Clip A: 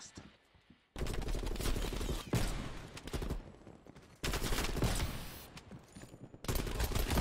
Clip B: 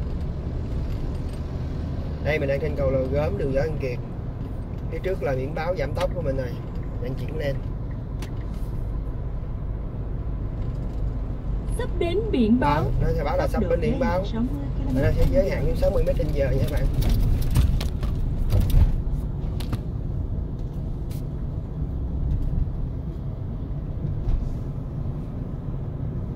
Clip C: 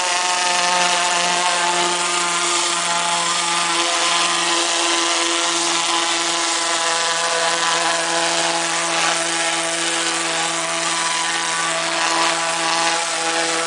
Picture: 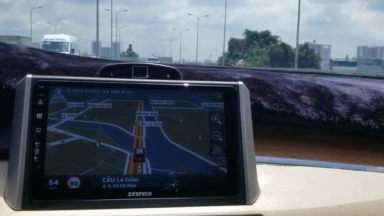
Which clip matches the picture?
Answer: B